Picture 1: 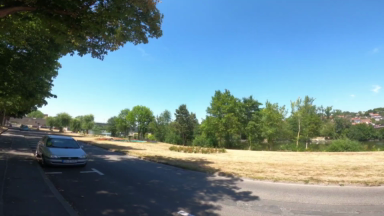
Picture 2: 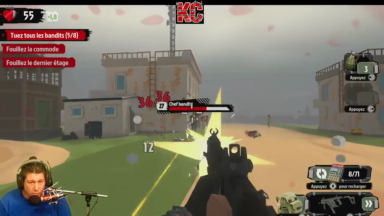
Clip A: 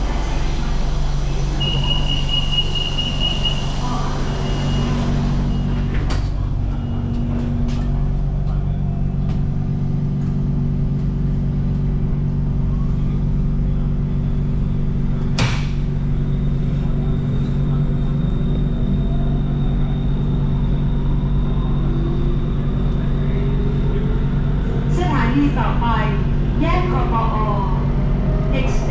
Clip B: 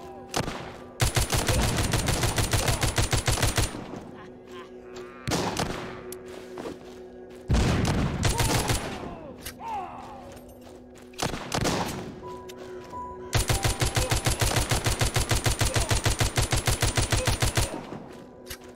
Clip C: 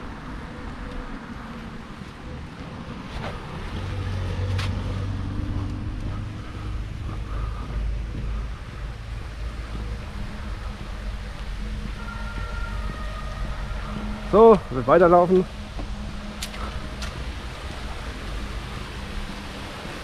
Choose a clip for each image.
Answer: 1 C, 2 B